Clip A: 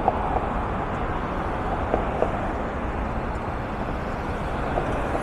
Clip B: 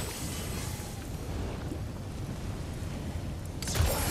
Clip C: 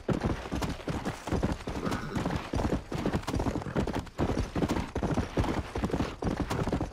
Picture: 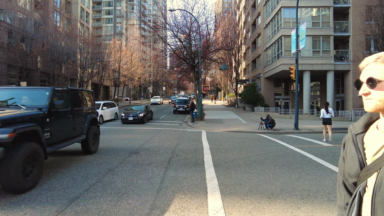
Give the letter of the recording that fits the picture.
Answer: A